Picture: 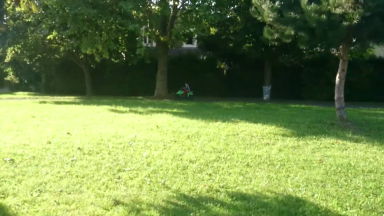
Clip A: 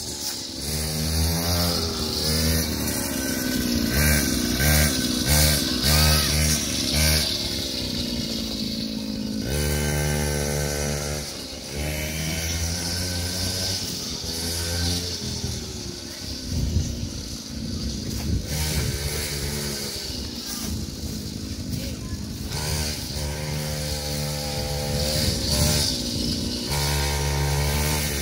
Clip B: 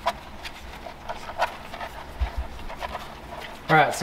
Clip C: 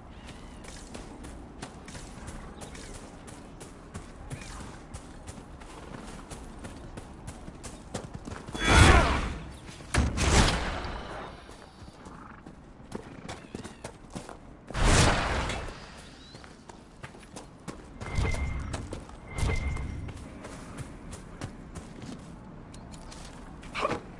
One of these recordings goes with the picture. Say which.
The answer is A